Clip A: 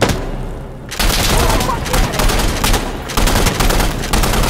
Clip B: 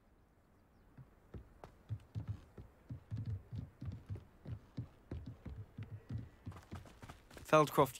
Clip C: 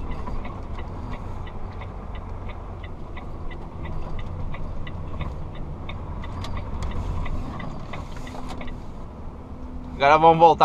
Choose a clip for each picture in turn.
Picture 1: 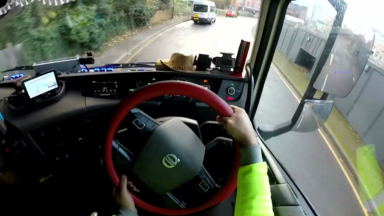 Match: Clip C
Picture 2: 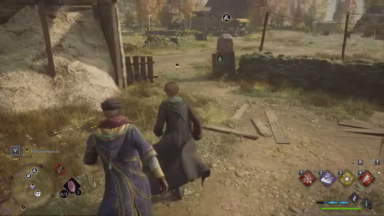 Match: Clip B